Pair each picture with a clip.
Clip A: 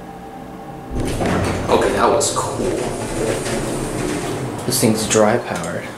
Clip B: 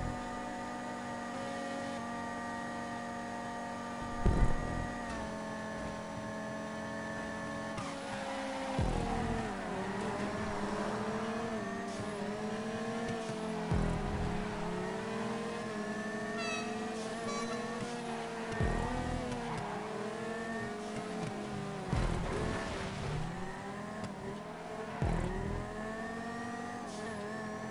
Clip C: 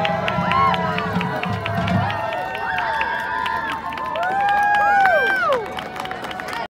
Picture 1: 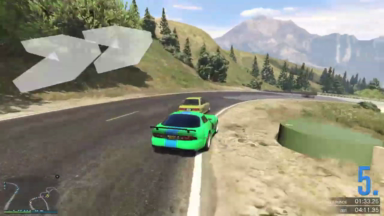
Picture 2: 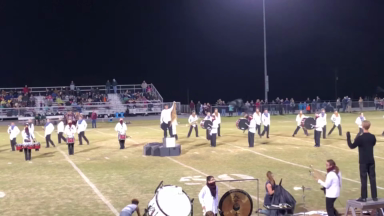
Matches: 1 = B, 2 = C